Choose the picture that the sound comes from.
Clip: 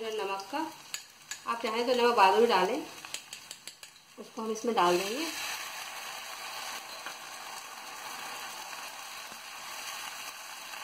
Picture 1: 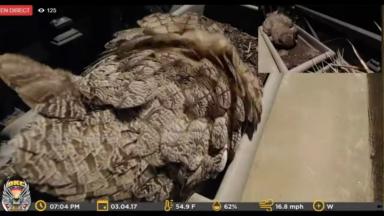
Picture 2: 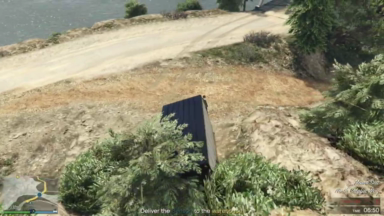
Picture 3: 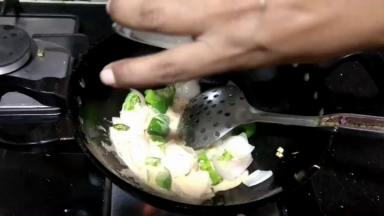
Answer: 3